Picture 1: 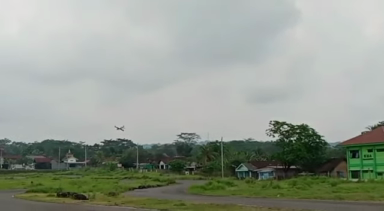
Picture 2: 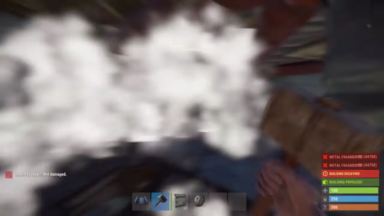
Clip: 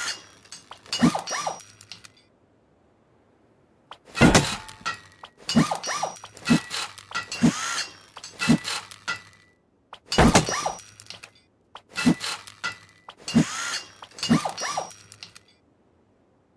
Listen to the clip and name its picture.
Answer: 2